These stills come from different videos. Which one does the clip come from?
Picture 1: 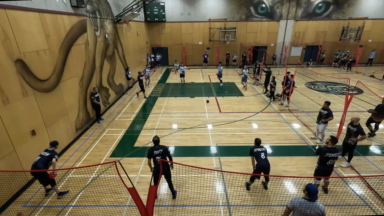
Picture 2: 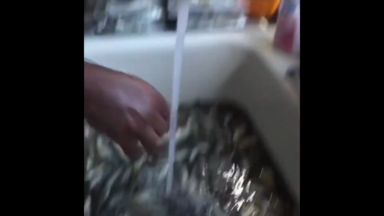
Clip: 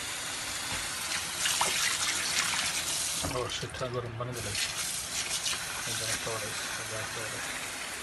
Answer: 2